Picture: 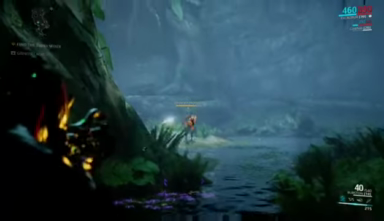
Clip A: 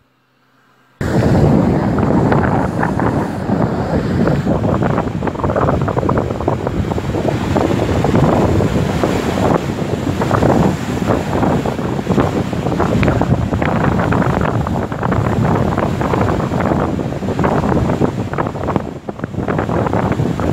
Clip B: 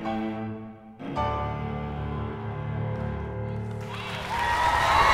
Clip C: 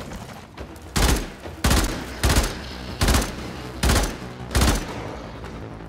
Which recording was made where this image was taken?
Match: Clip C